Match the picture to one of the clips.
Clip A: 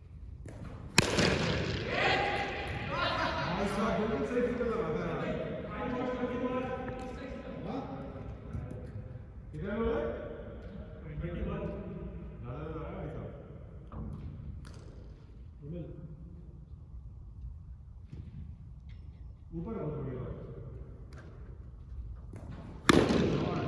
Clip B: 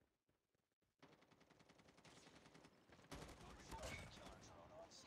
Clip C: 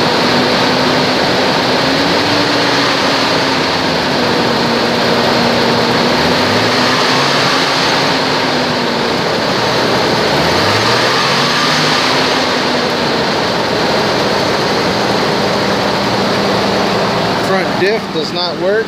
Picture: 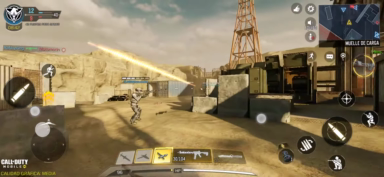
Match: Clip B